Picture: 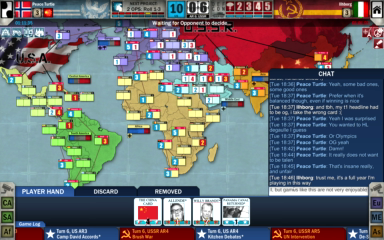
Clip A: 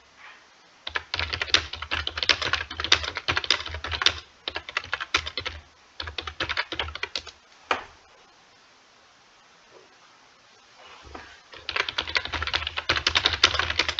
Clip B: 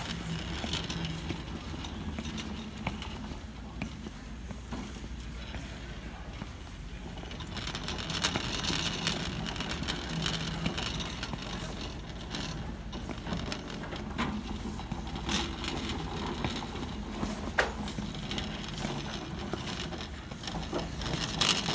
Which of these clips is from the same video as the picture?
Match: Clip A